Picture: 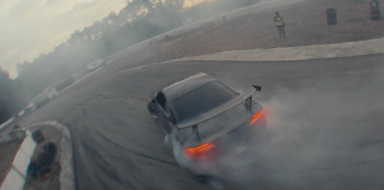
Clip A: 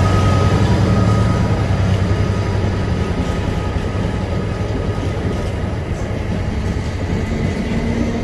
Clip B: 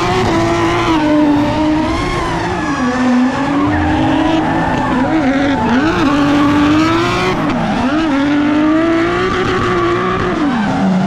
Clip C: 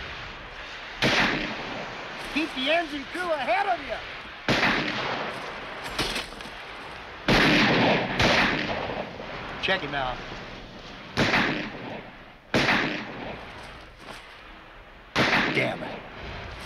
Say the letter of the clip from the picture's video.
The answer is B